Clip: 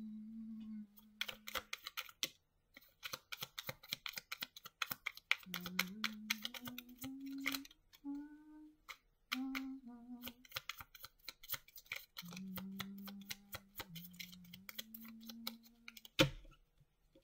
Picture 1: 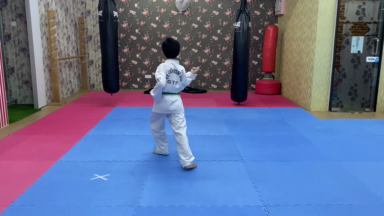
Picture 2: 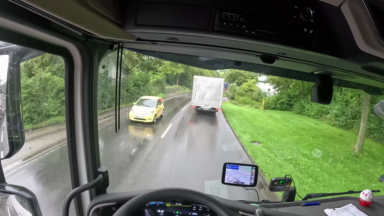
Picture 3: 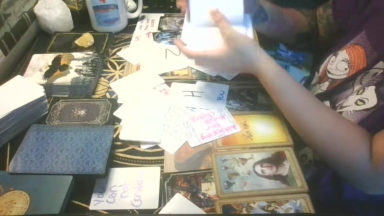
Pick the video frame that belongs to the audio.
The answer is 3